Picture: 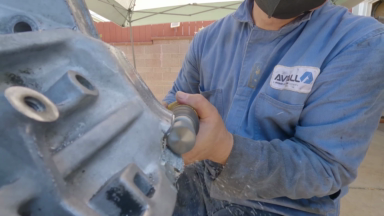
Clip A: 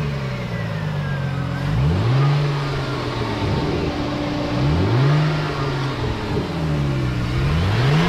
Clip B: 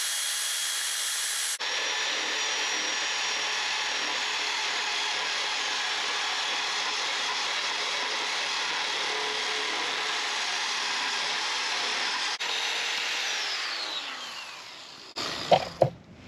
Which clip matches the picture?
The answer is B